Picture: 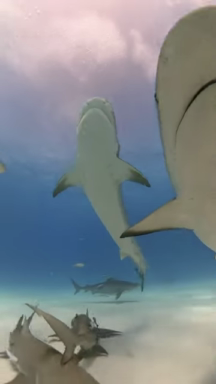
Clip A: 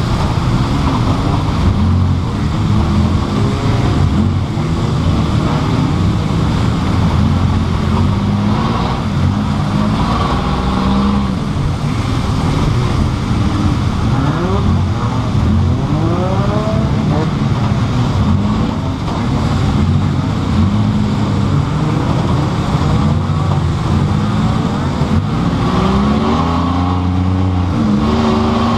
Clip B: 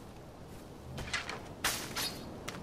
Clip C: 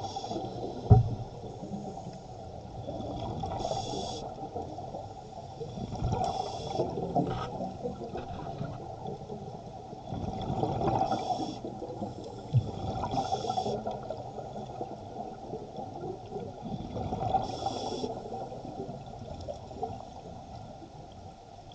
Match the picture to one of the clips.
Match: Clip C